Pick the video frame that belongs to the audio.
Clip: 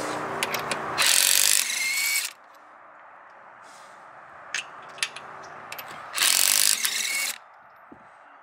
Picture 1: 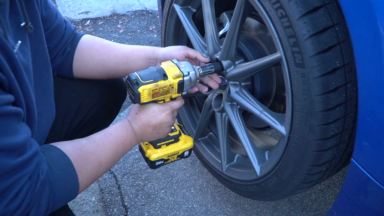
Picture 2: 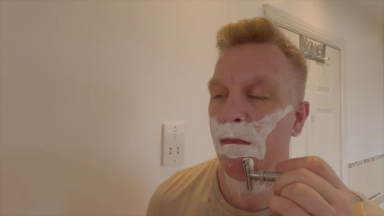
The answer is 1